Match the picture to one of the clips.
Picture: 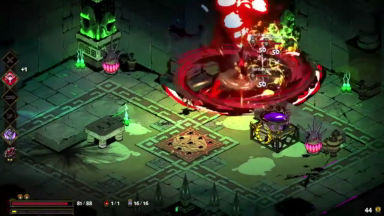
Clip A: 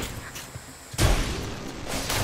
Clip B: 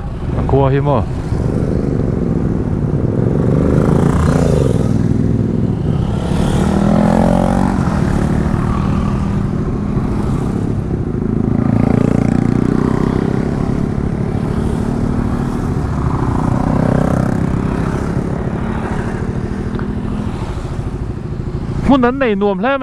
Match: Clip A